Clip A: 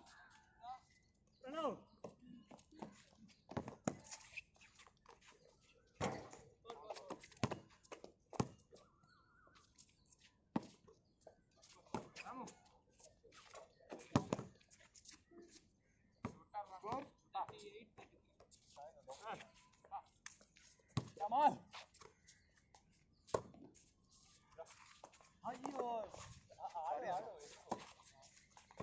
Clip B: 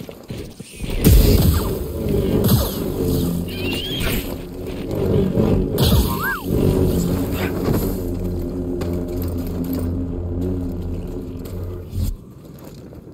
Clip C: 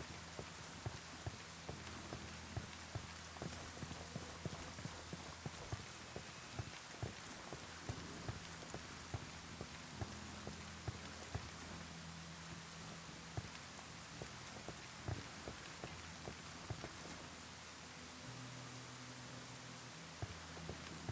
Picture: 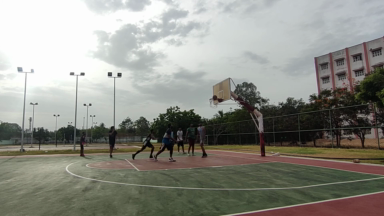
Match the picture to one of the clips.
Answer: A